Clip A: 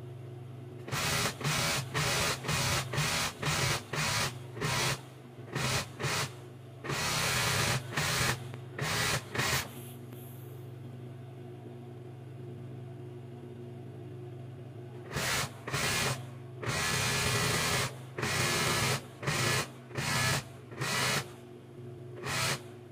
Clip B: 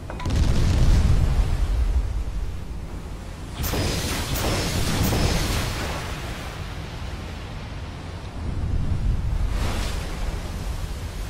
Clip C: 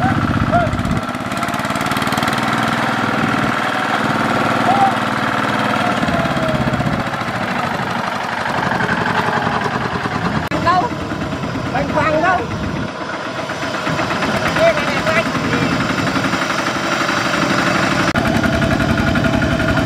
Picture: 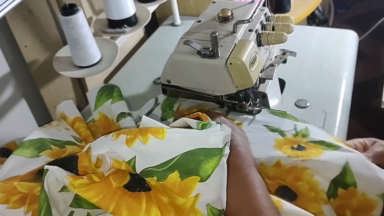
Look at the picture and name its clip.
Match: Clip A